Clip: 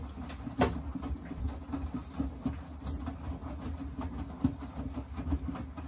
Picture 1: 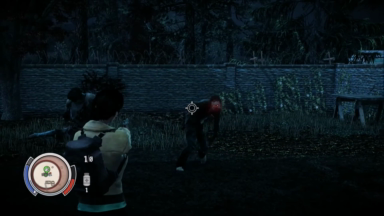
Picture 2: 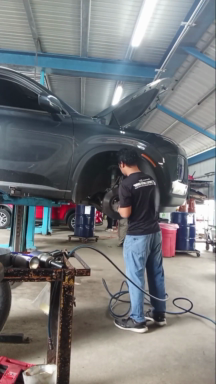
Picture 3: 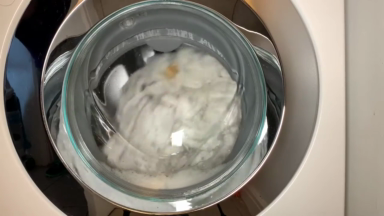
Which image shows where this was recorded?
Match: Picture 3